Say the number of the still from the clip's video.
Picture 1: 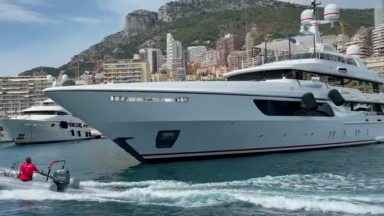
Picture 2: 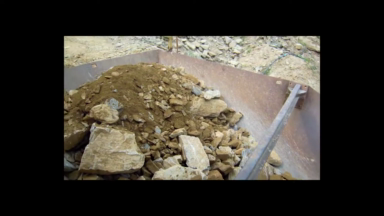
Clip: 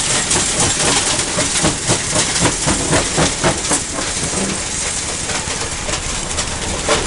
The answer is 2